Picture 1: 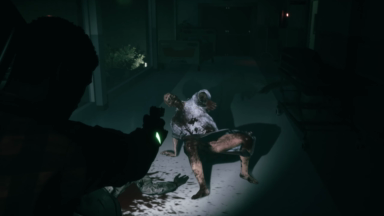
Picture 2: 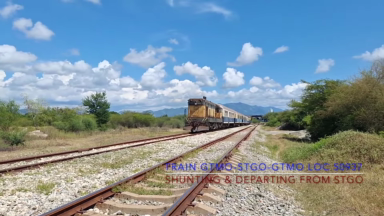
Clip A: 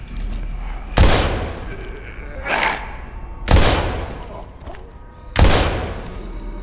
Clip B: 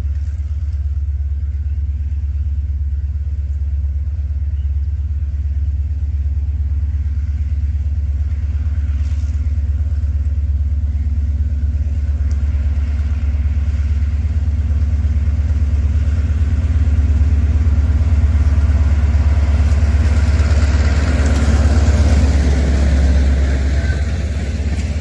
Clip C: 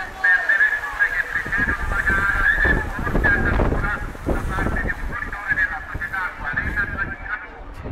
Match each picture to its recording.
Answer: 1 A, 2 B